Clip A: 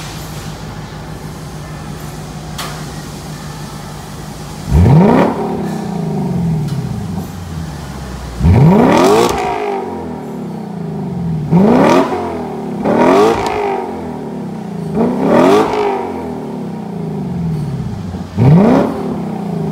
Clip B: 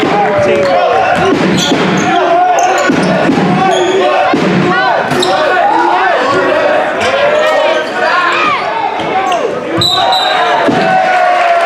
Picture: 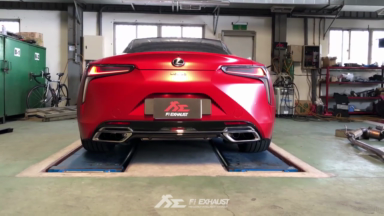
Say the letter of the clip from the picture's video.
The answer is A